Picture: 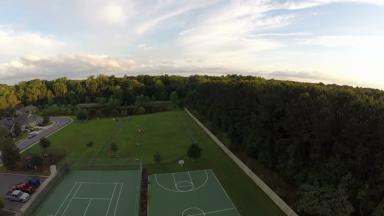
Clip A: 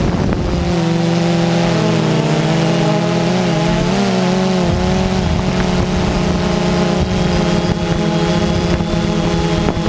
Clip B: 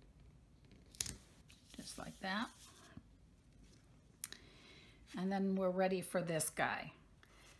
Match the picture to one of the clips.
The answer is A